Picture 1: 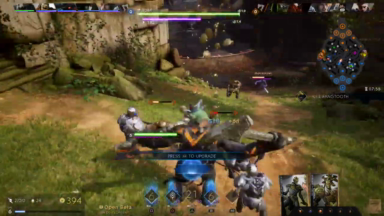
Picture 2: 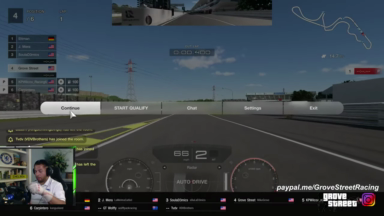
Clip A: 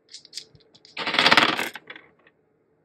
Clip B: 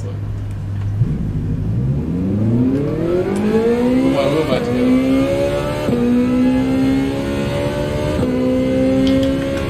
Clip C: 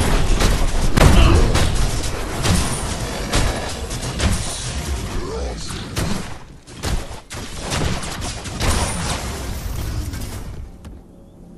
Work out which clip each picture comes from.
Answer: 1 C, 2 B